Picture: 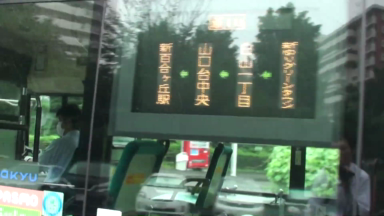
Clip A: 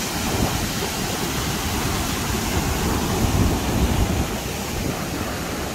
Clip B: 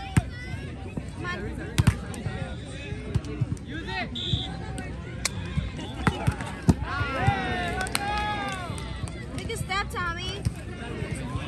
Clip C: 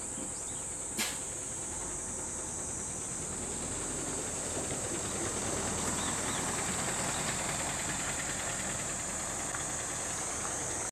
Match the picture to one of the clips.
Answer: C